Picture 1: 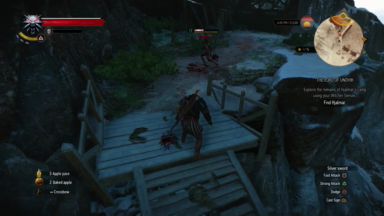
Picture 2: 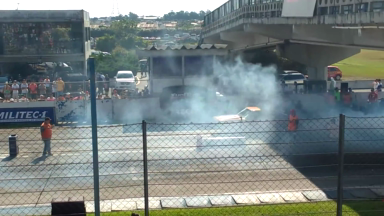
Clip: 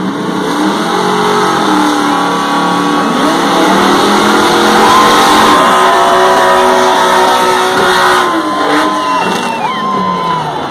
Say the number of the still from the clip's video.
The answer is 2